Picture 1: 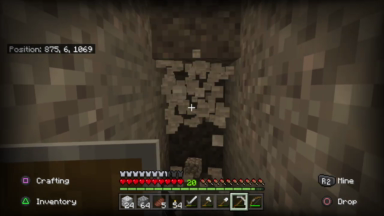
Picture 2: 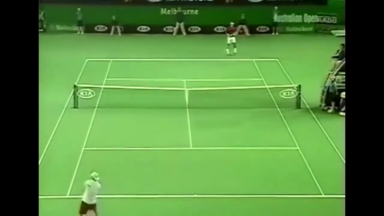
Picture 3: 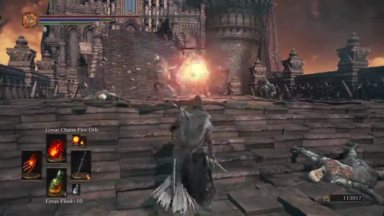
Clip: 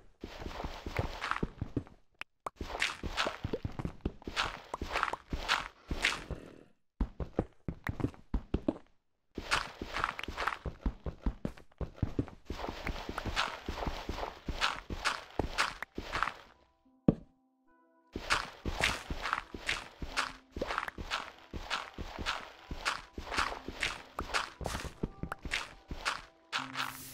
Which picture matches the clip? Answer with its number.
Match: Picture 1